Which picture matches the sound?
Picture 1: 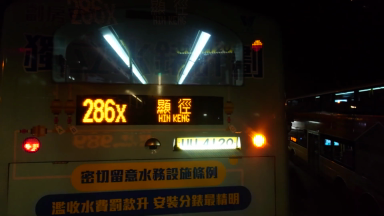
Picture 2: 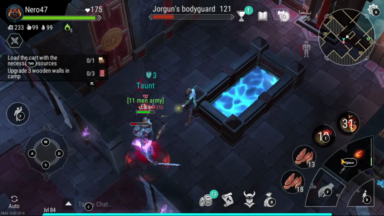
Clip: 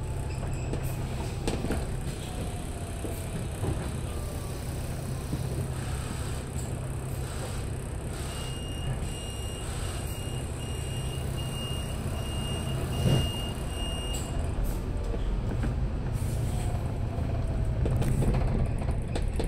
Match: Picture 1